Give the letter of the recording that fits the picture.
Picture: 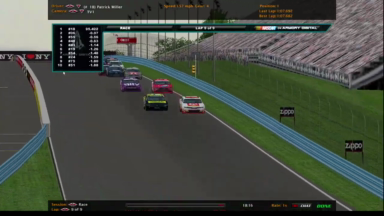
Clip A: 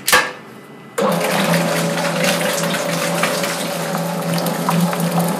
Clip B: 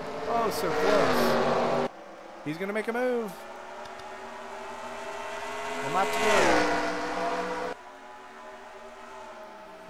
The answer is B